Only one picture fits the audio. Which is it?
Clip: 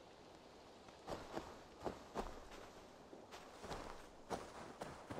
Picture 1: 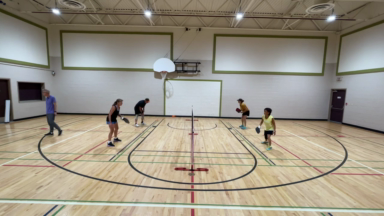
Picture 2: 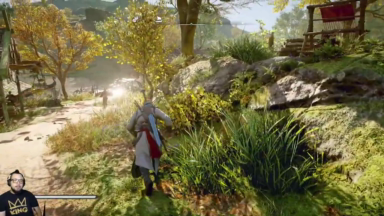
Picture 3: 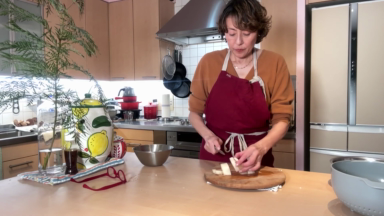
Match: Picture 2